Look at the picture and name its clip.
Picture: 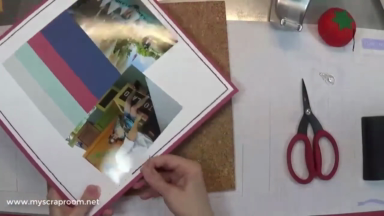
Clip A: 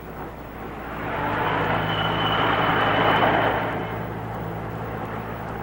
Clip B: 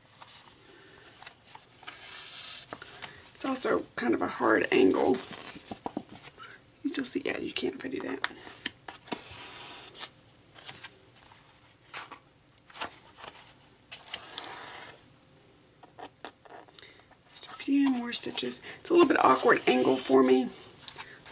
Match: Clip B